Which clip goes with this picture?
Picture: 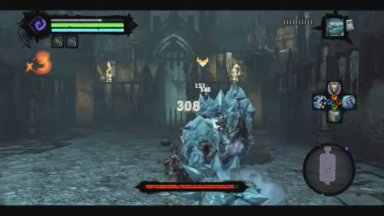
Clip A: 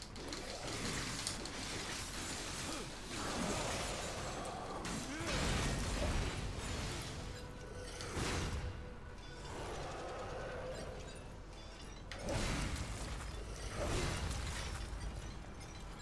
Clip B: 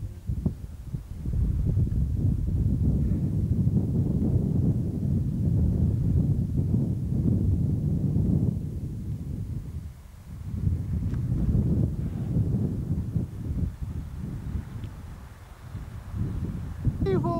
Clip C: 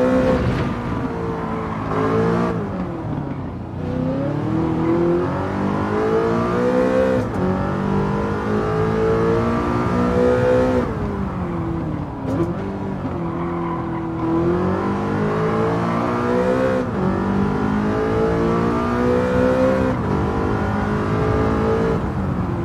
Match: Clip A